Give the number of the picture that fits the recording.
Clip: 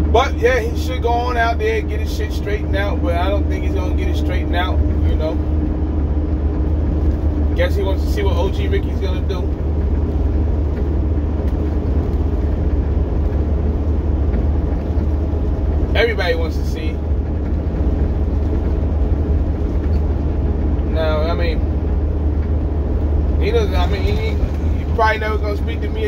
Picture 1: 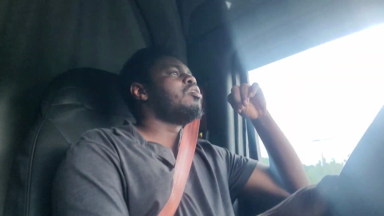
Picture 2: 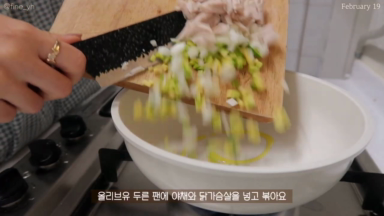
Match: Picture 1